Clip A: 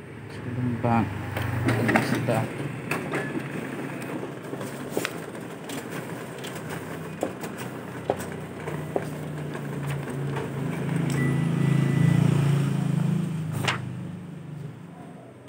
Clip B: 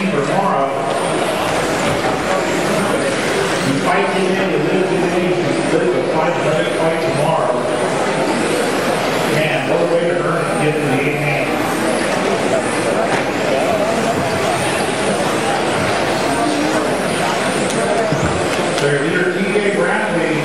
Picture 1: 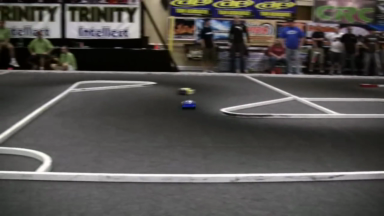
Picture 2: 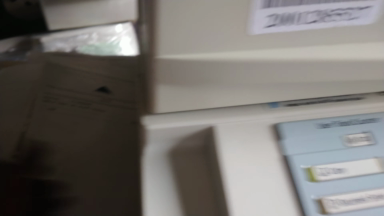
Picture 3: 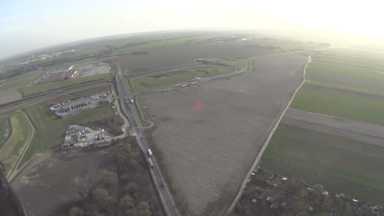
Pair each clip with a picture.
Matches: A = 2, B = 1